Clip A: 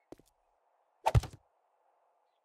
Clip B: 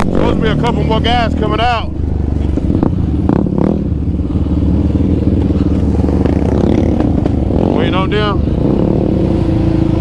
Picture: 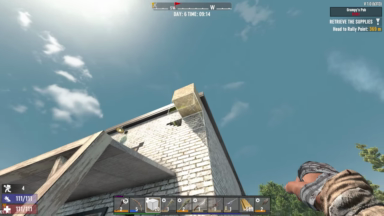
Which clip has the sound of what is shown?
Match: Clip A